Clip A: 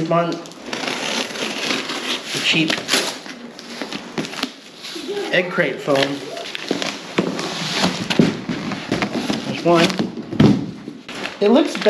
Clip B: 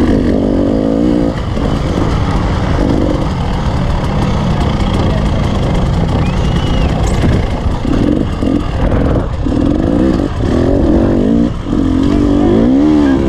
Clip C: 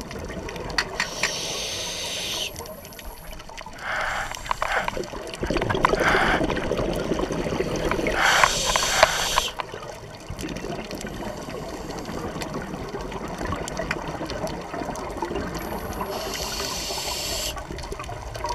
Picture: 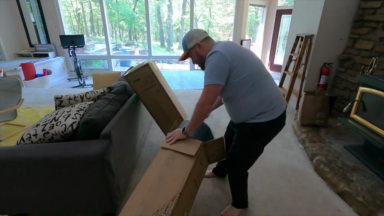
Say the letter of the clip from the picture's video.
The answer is A